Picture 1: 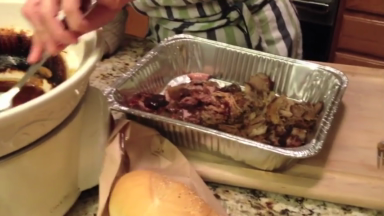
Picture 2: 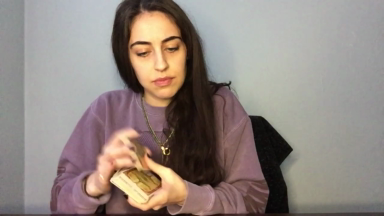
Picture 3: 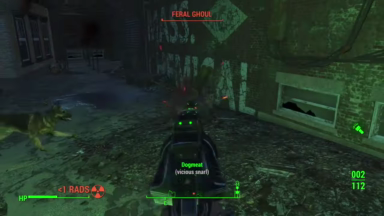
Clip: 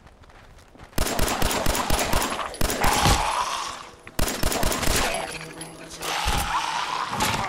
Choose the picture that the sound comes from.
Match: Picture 3